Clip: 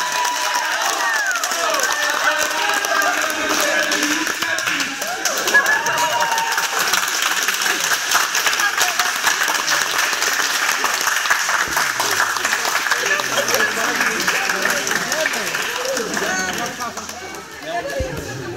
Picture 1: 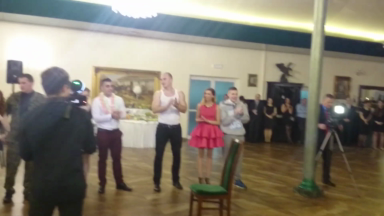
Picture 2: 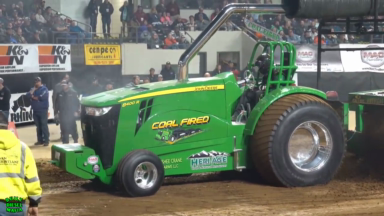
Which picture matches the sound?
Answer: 1